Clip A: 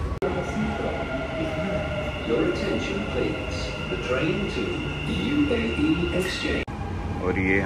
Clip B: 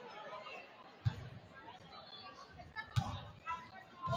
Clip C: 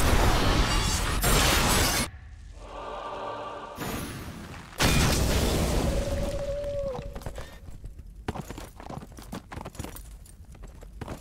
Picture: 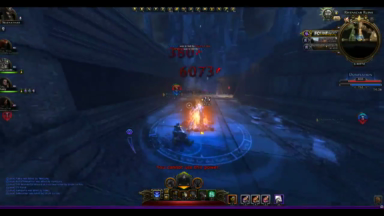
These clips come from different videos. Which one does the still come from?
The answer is C